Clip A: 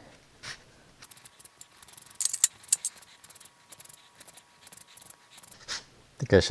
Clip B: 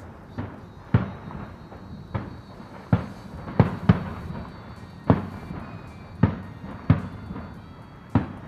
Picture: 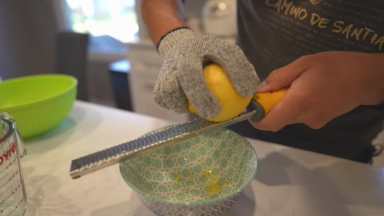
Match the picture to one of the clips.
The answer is A